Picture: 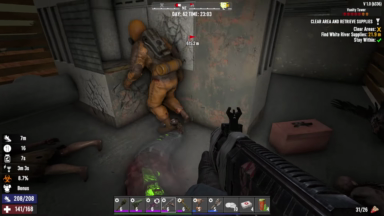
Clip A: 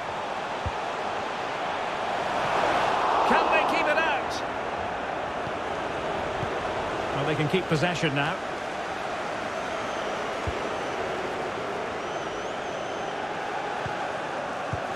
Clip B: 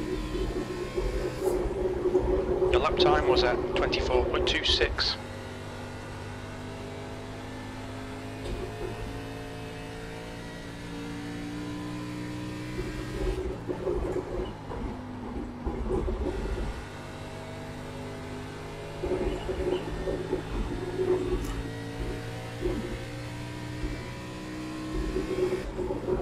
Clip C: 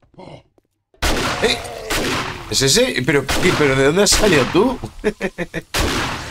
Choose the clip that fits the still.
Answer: C